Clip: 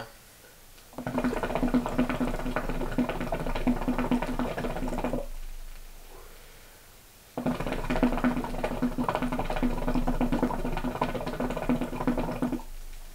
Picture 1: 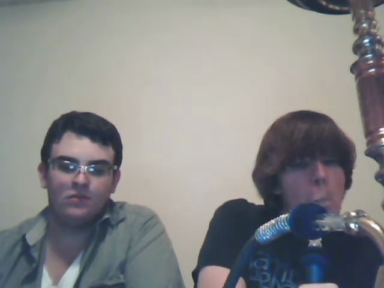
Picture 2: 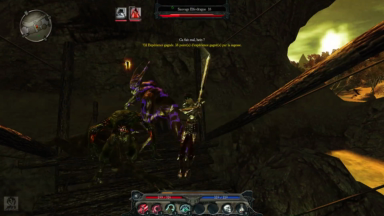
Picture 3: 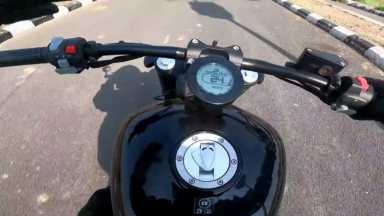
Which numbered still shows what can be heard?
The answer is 1